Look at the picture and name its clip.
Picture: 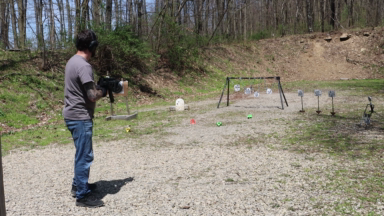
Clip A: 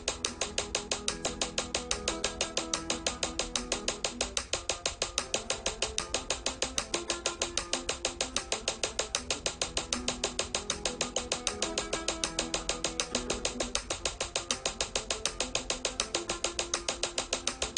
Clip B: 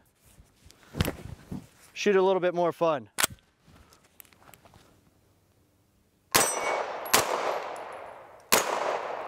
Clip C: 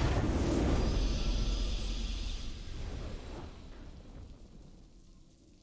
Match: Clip B